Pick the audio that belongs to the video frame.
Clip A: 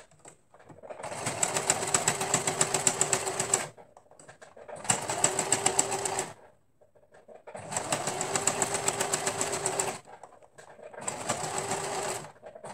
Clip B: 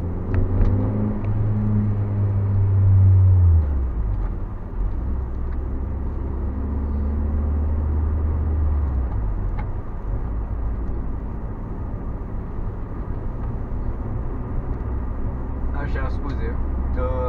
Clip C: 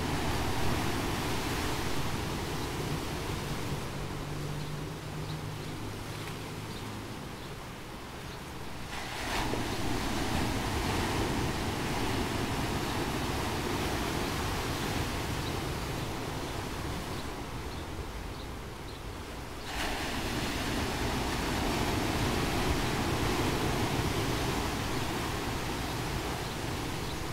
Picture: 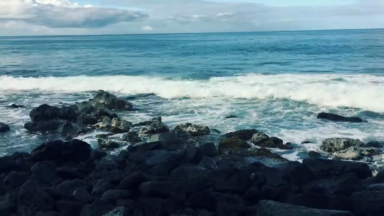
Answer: C